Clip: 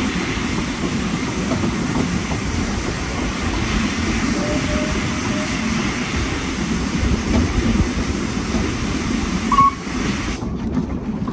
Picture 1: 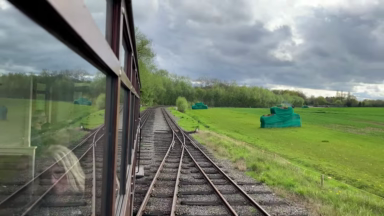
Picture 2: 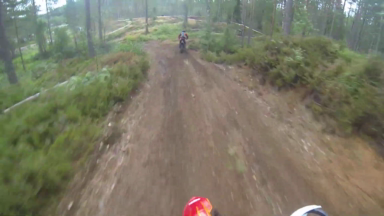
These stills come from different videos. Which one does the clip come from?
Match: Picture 1